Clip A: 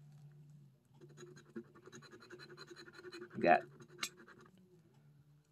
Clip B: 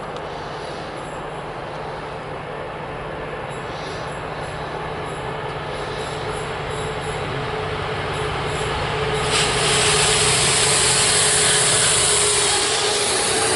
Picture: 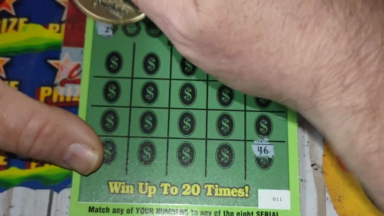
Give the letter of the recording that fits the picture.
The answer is A